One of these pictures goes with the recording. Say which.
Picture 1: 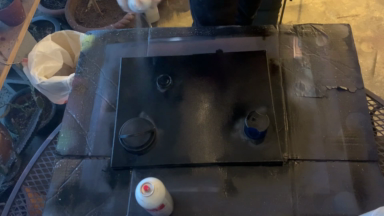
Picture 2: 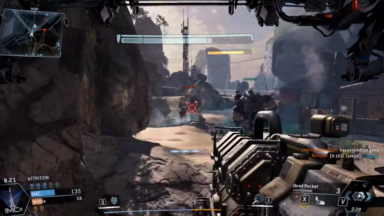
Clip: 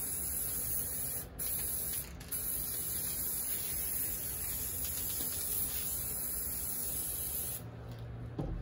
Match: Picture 1